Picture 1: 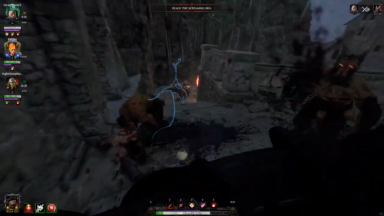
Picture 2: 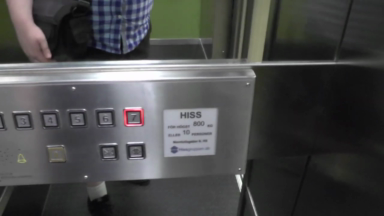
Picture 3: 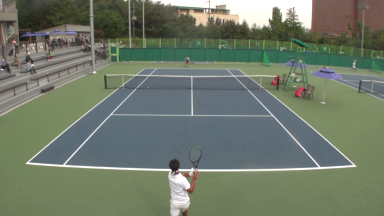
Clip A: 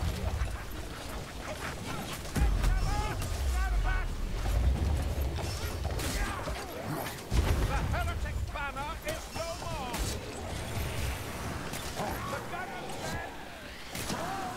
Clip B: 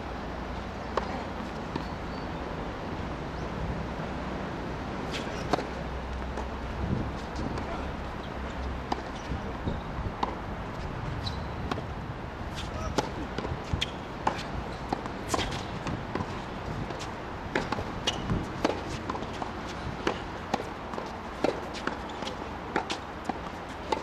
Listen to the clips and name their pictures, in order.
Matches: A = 1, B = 3